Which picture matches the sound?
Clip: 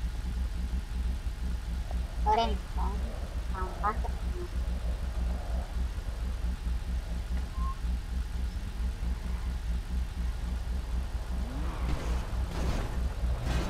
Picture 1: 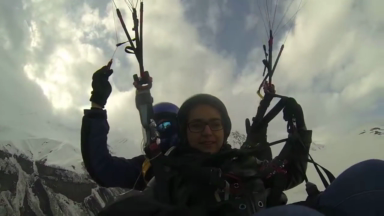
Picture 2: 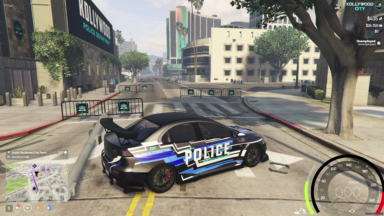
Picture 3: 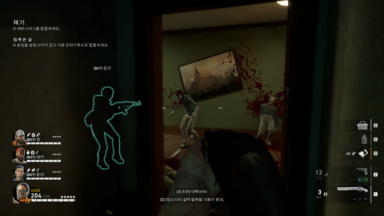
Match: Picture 2